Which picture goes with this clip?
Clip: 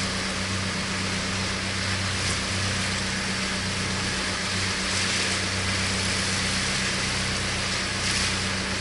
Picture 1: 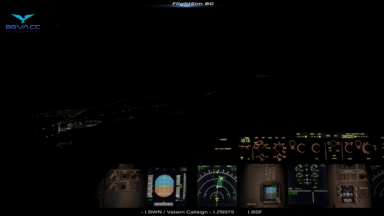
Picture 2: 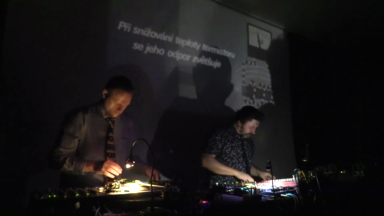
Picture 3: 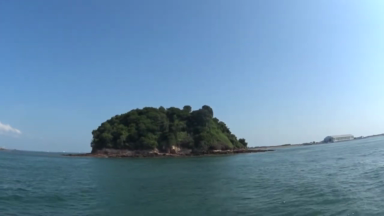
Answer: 3